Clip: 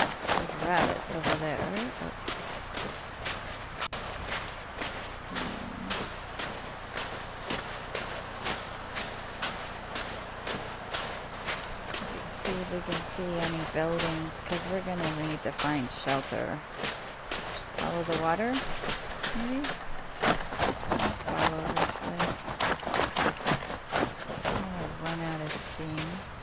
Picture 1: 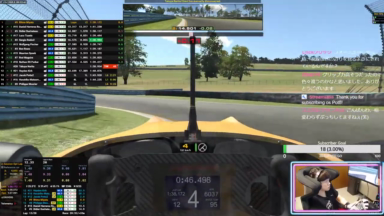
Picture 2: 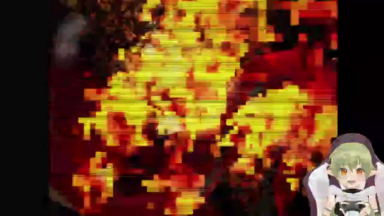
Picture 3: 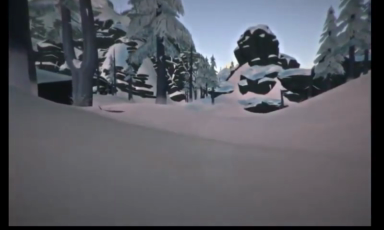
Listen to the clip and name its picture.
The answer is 3